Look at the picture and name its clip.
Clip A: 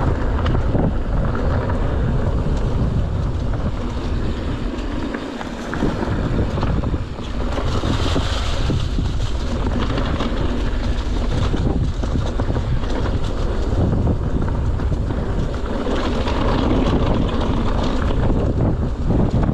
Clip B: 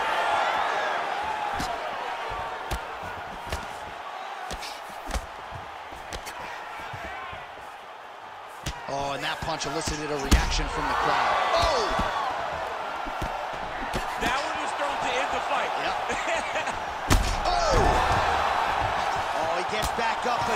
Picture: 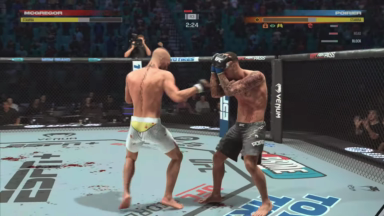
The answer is B